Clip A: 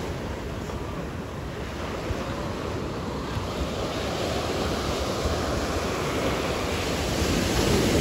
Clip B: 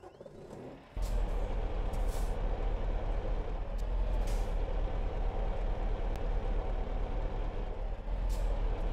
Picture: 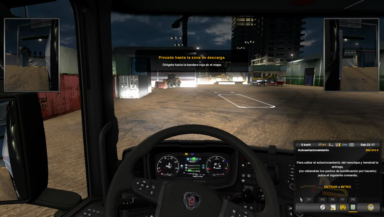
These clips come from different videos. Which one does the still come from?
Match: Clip B